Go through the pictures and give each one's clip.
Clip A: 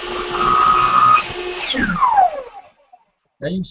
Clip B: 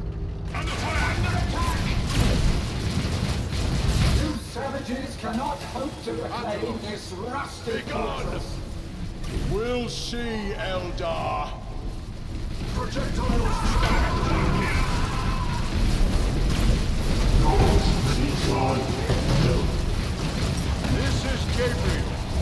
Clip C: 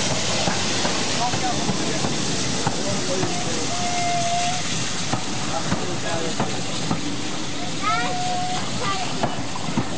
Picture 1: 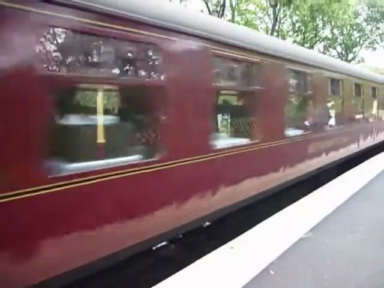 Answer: C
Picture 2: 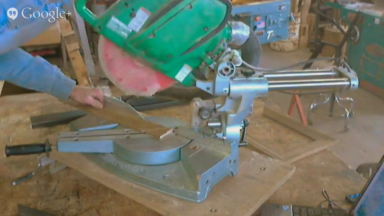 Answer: A